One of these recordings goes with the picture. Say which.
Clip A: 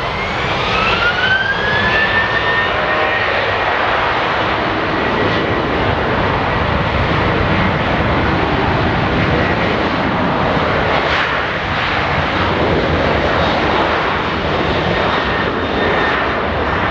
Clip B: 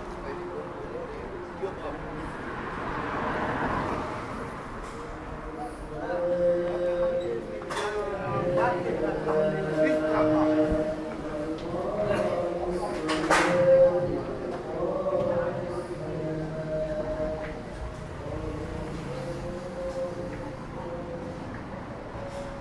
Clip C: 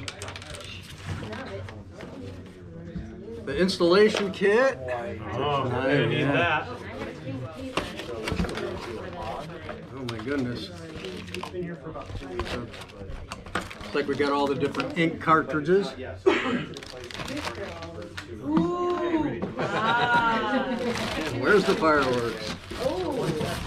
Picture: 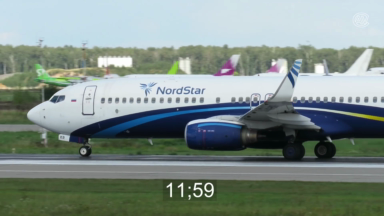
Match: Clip A